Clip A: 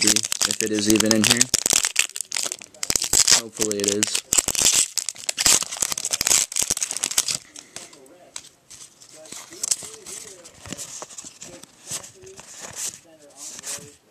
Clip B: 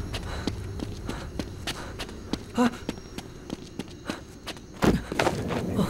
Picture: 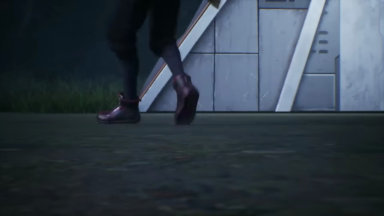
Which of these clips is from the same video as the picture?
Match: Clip B